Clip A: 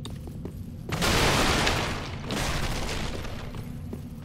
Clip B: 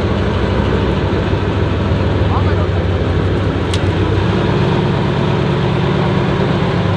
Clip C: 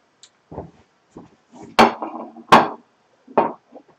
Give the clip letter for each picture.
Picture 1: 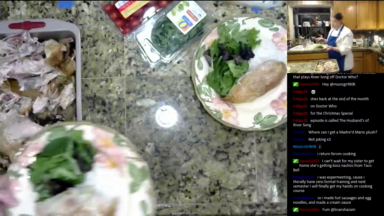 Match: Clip C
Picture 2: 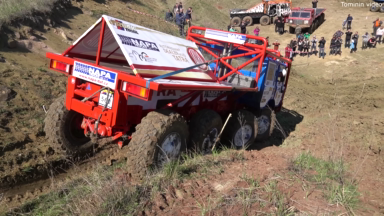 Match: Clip B